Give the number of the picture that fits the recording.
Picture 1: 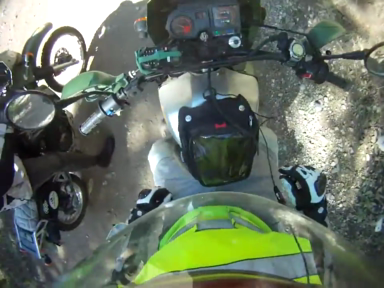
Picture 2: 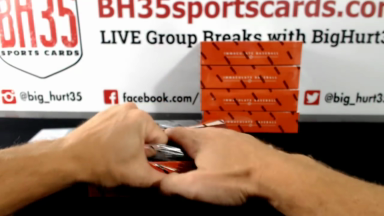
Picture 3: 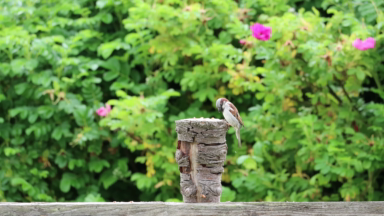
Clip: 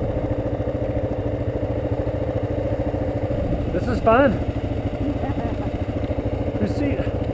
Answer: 1